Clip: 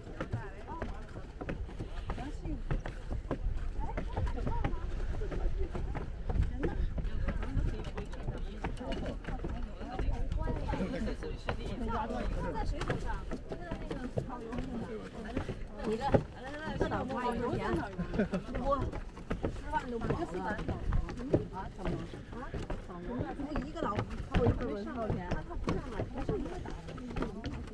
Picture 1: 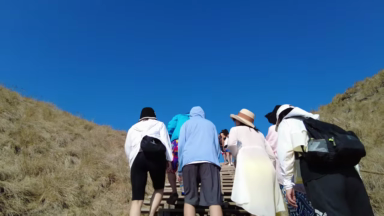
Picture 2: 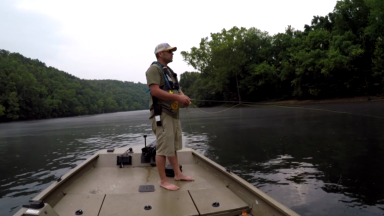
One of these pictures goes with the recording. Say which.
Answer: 1